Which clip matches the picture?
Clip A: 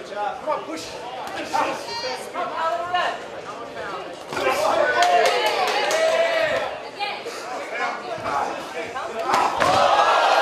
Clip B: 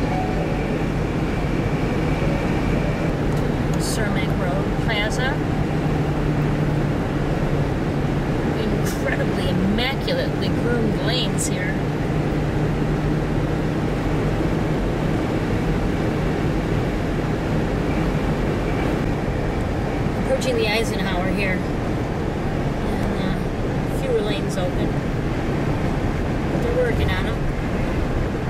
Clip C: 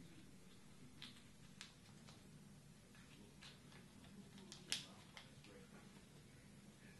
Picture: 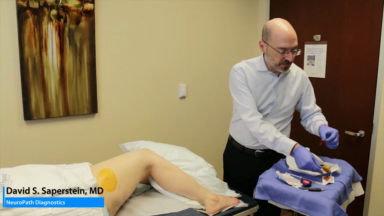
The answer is C